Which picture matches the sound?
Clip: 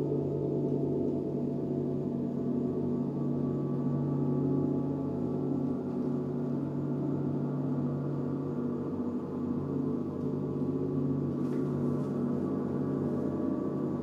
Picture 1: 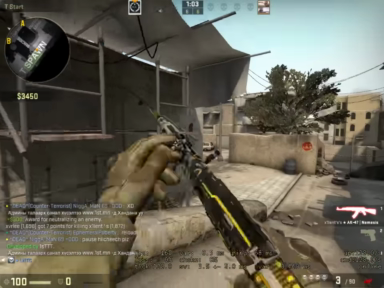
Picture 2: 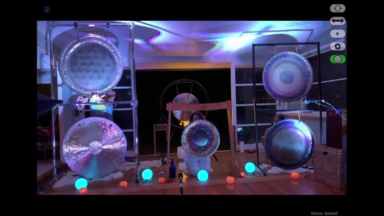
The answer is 2